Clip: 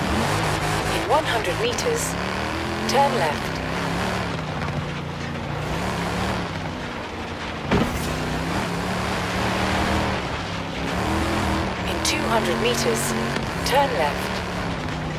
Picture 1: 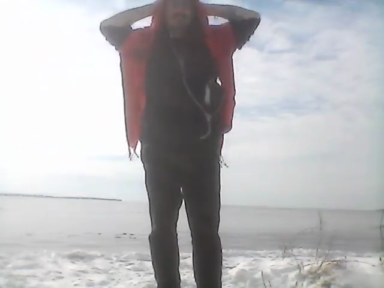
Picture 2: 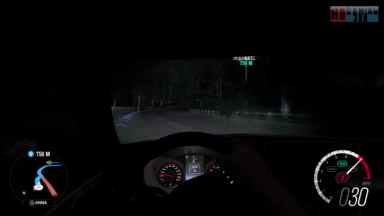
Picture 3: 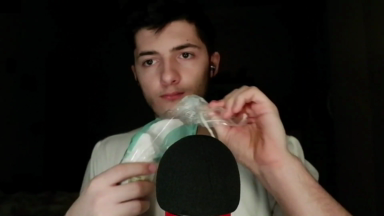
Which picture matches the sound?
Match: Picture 2